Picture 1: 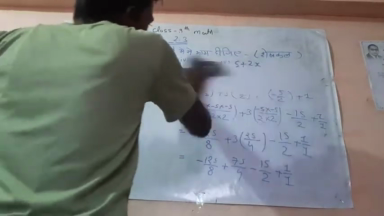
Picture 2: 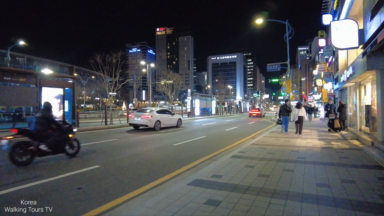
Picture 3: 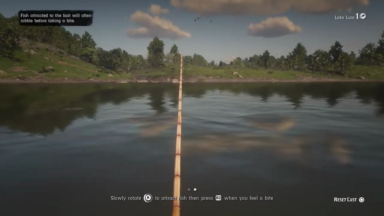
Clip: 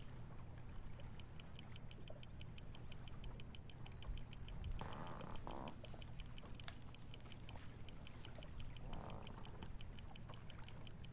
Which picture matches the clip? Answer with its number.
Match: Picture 3